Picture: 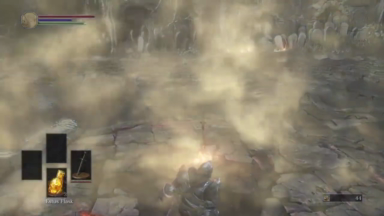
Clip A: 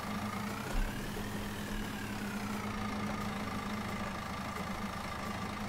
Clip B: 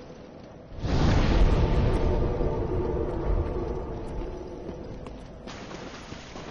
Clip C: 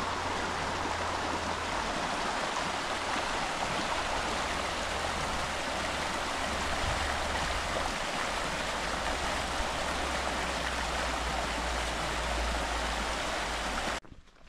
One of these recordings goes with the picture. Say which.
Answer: B